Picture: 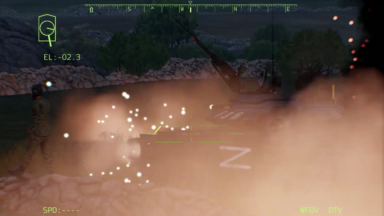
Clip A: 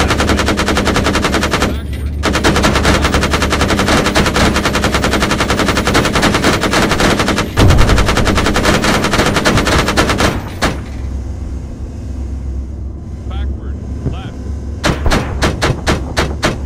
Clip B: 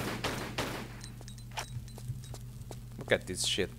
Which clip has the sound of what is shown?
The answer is A